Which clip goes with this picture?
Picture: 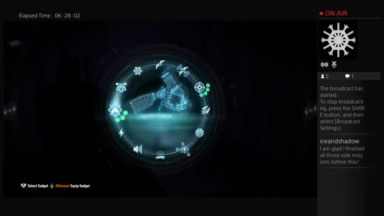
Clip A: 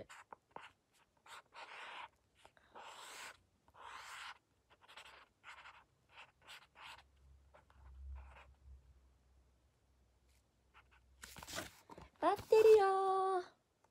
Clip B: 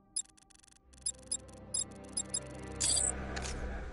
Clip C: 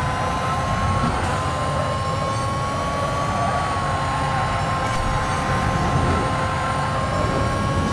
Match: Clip B